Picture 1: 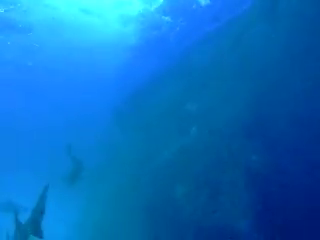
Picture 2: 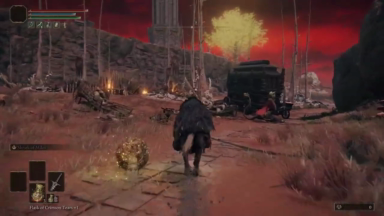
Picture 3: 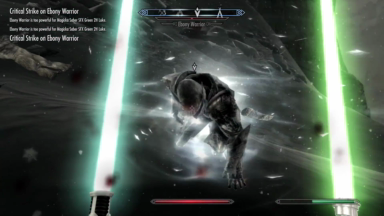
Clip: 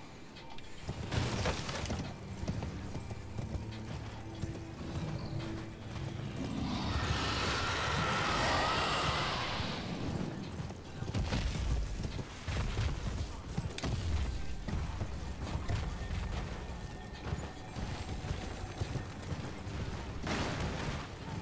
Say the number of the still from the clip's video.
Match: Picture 2